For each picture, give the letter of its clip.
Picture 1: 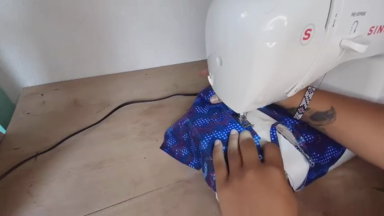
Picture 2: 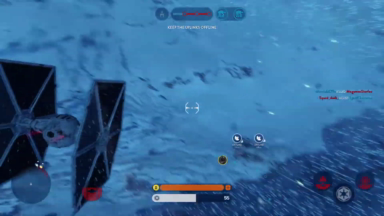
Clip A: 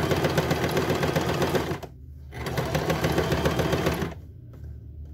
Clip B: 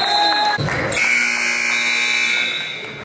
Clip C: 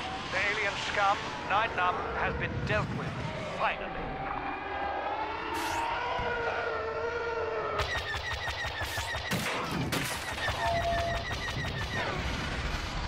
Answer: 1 A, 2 C